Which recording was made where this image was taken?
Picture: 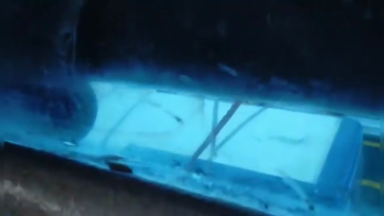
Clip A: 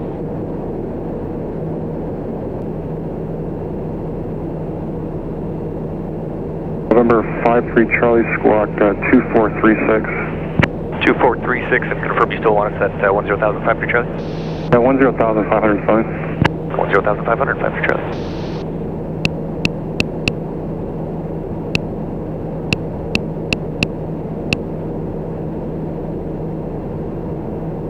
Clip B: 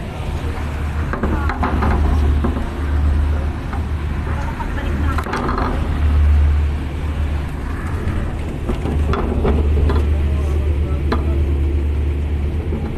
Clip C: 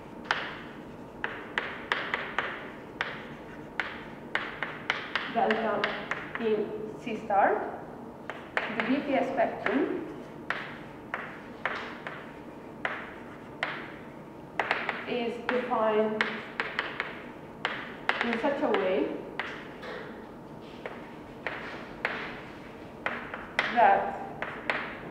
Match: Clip B